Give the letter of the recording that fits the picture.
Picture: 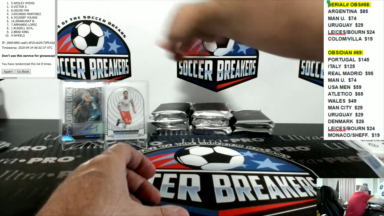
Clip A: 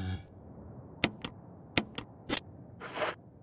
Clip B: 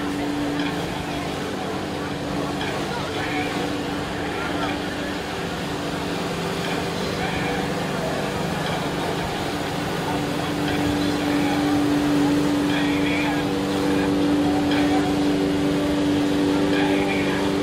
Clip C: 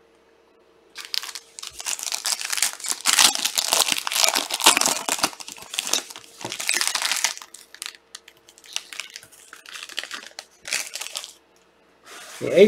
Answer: C